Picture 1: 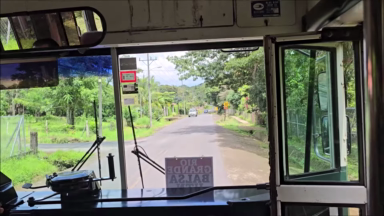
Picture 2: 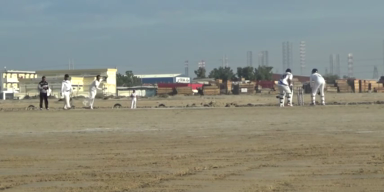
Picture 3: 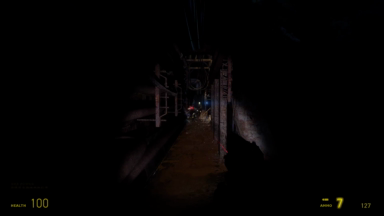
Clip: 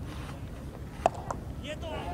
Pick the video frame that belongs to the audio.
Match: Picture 2